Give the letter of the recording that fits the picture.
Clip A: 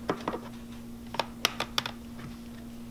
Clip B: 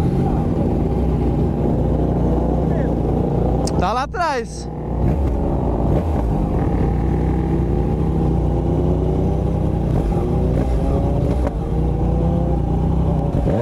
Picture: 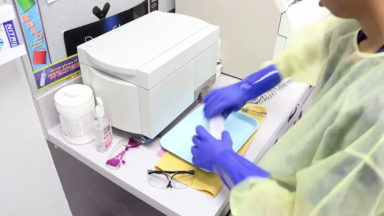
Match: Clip A